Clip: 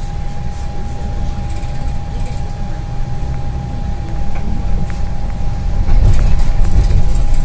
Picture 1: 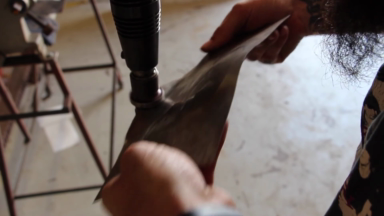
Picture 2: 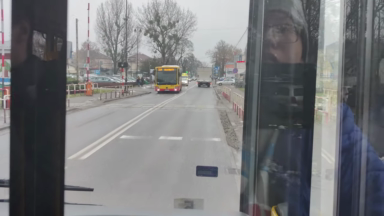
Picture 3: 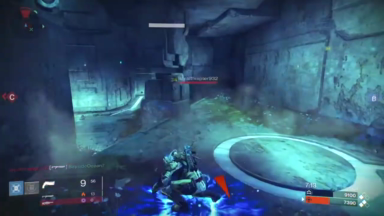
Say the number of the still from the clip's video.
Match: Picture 2